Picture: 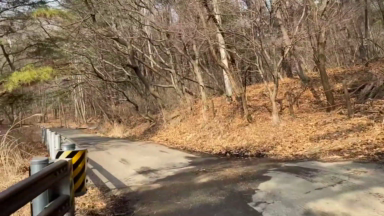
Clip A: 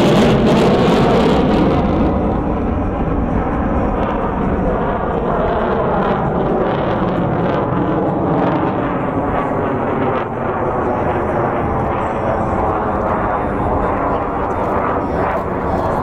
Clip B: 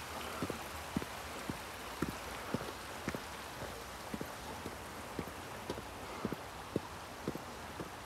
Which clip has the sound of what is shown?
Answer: B